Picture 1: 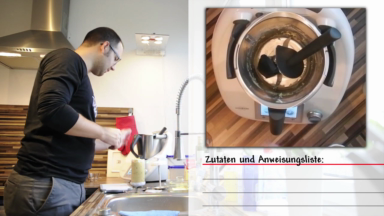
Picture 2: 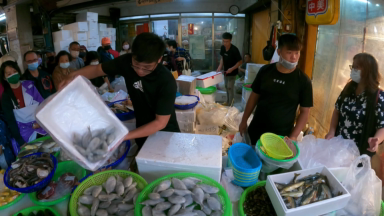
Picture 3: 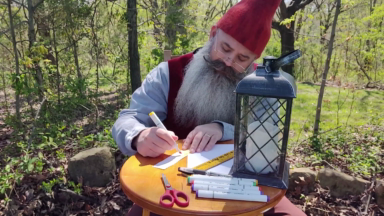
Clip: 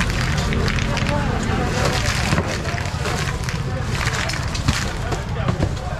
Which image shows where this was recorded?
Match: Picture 2